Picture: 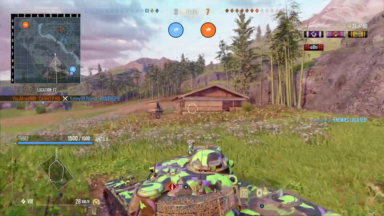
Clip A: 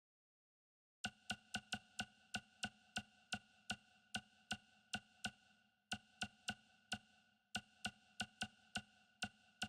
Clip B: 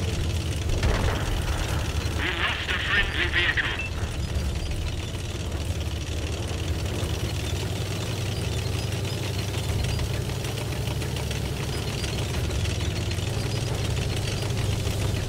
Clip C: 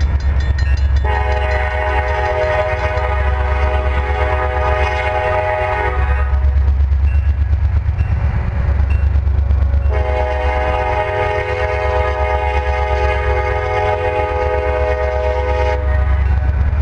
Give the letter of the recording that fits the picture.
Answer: B